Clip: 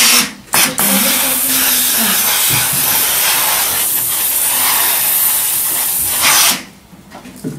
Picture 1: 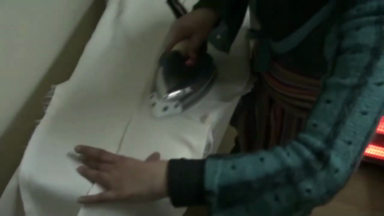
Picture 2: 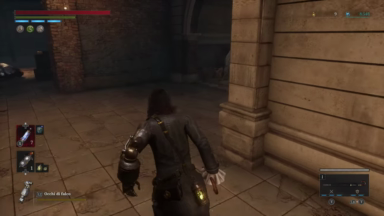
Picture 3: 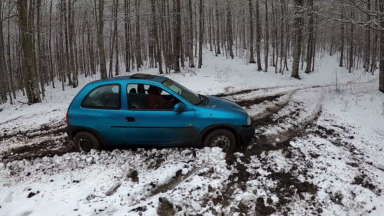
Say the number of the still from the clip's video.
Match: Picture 1